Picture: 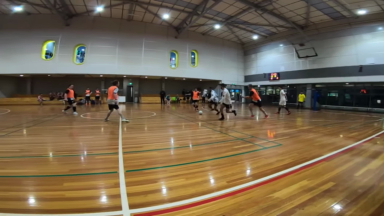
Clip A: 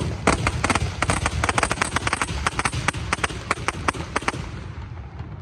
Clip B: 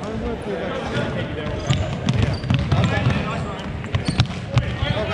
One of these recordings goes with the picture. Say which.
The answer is B